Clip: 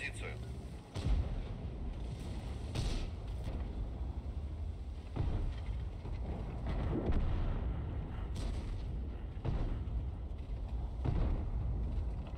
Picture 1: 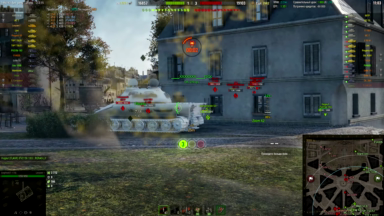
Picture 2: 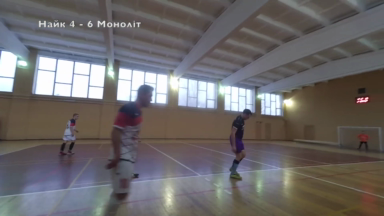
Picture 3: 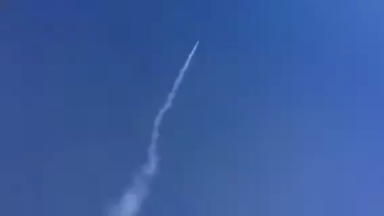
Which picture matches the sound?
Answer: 1